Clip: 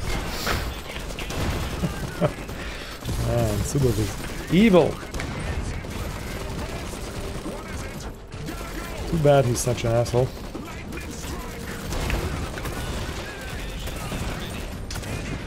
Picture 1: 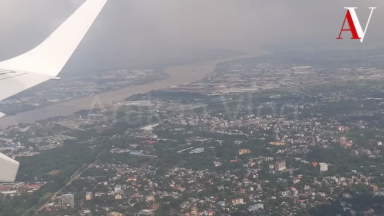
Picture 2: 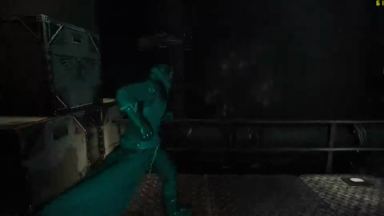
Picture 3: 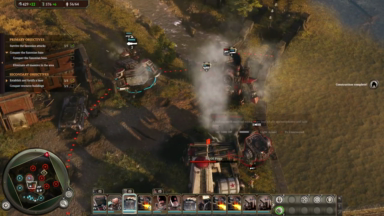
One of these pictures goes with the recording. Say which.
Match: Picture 3